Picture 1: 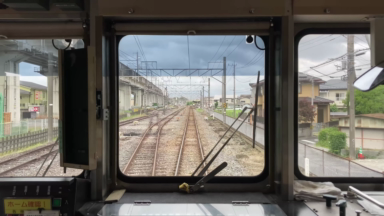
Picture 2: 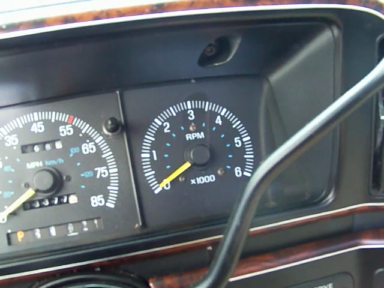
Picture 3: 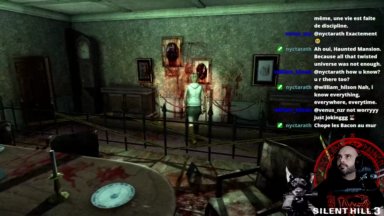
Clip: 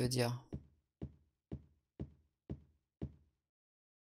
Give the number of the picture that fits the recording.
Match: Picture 3